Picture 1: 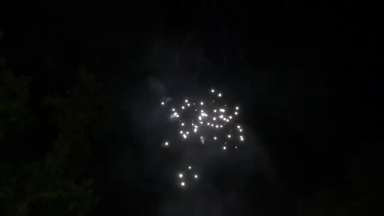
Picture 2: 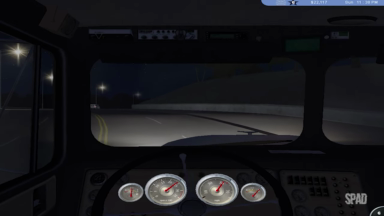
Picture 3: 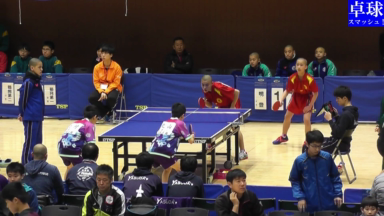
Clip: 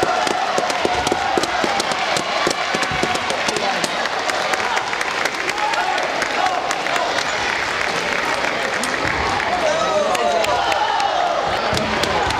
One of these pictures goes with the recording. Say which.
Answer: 3